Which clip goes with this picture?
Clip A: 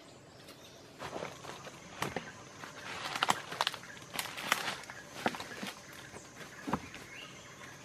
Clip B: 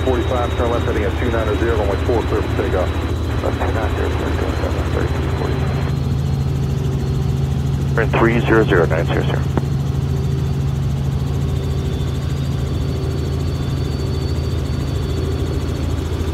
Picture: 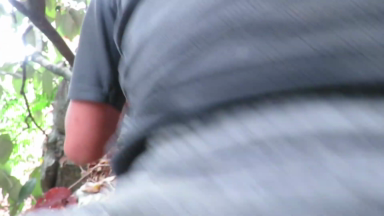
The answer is A